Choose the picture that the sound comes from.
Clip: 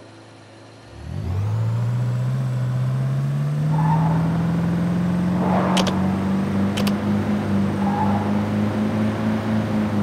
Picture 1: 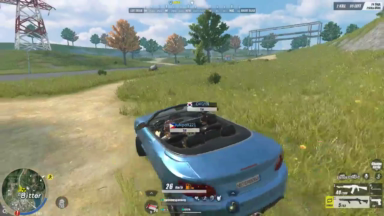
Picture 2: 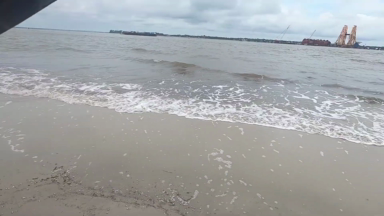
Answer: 1